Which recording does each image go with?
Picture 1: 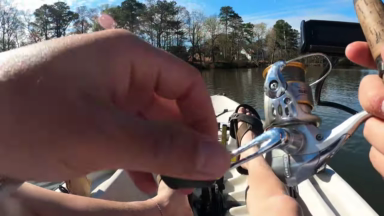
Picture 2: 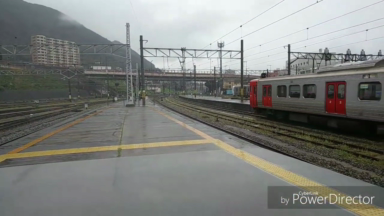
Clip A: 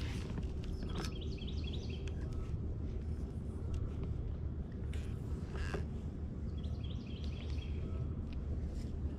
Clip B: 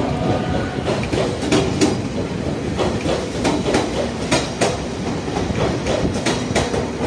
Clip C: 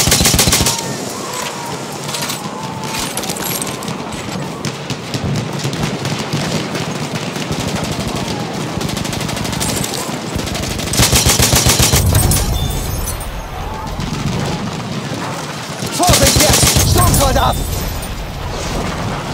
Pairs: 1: A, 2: B